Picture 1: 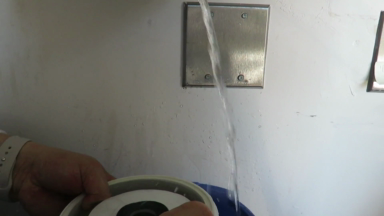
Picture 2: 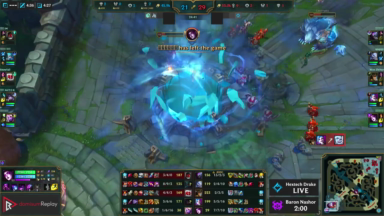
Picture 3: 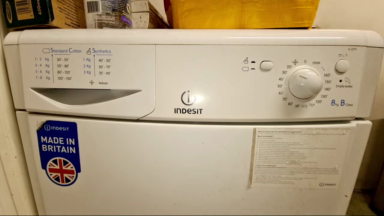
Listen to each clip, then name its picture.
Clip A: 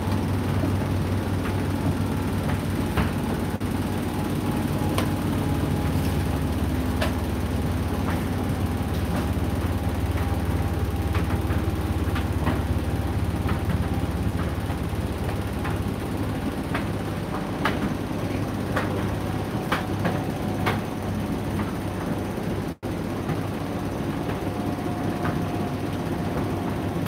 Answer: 3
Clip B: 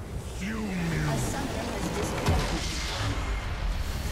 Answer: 2